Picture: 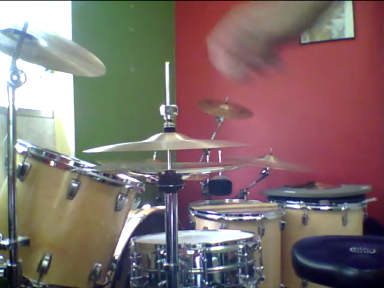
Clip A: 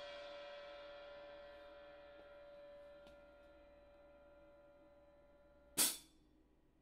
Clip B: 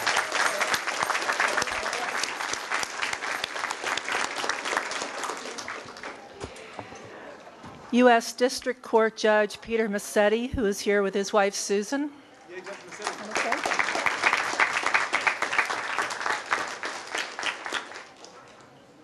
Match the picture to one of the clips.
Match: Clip A